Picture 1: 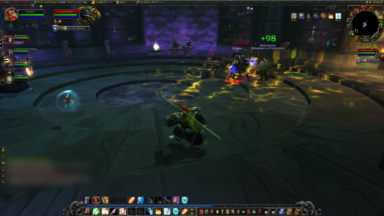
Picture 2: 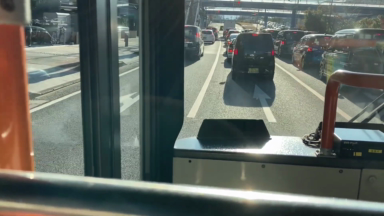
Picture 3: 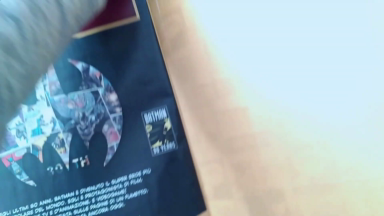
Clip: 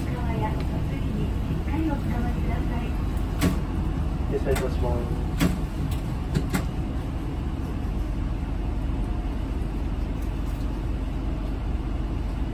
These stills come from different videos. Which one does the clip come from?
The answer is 2